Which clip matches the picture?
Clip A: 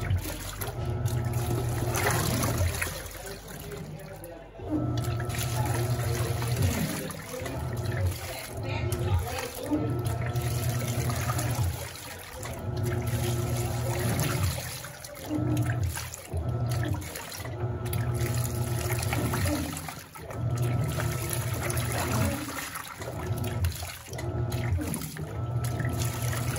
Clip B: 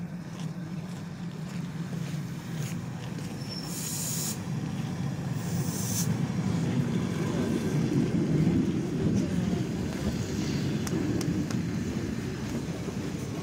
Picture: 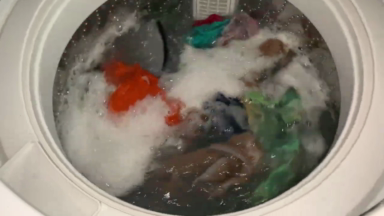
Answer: A